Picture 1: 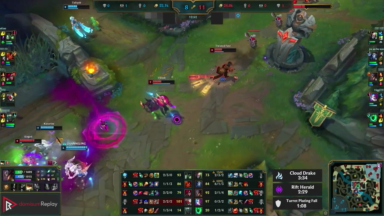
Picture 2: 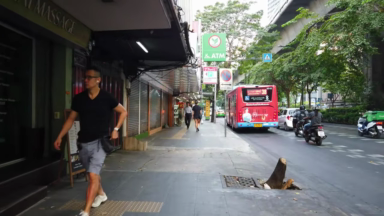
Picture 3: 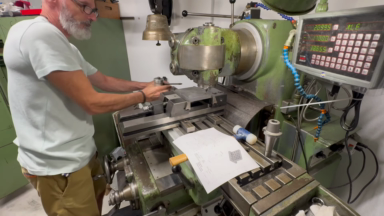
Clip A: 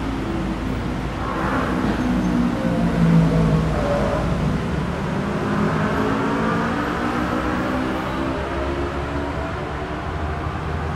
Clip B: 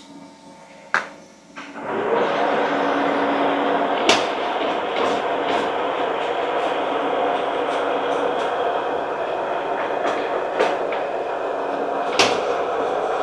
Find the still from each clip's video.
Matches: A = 2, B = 3